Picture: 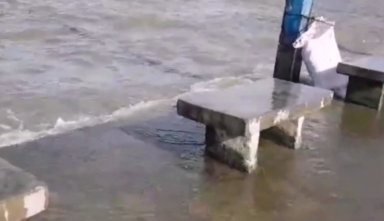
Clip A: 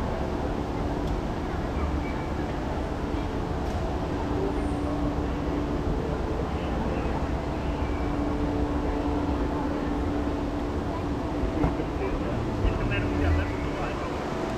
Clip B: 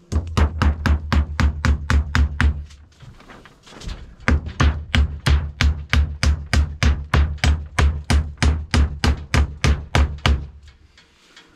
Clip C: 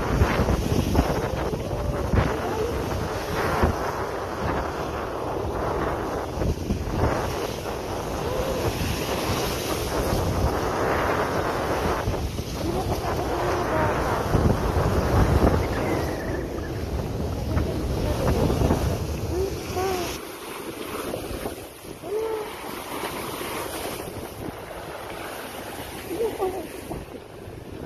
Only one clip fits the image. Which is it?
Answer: C